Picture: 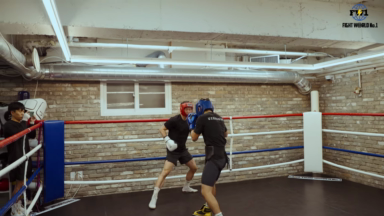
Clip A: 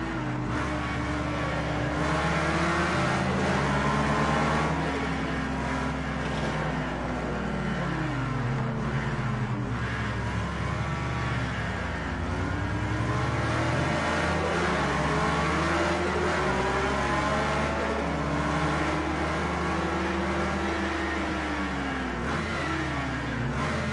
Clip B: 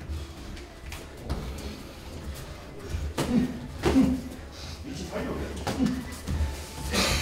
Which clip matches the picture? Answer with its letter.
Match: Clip B